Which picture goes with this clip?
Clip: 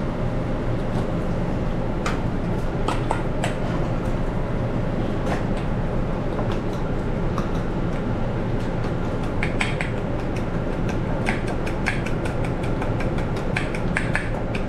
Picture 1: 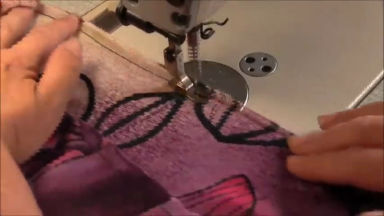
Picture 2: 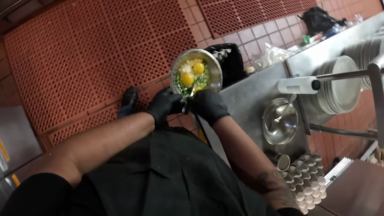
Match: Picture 2